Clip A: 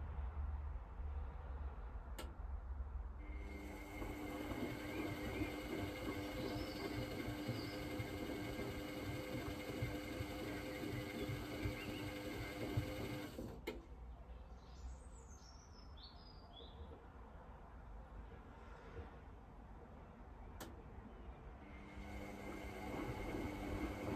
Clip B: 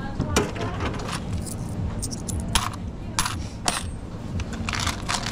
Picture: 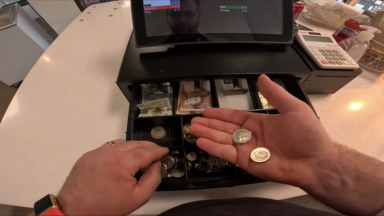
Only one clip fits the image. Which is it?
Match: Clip B